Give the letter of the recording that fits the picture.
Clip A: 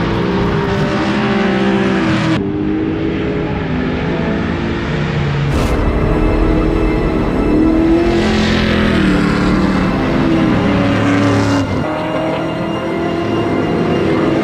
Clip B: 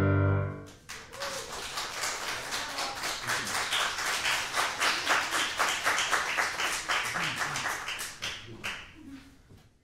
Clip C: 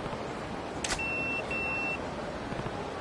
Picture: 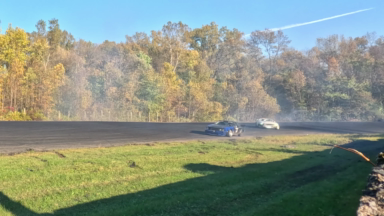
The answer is A